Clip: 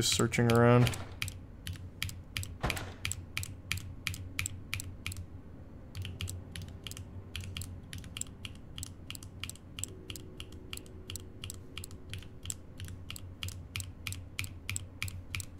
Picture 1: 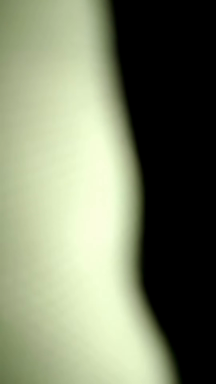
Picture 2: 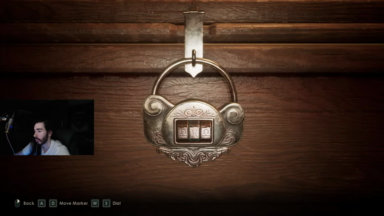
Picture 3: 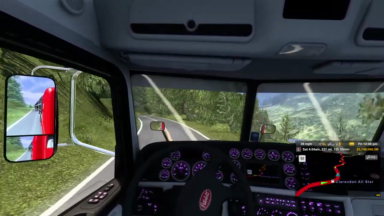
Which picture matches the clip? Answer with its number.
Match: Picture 2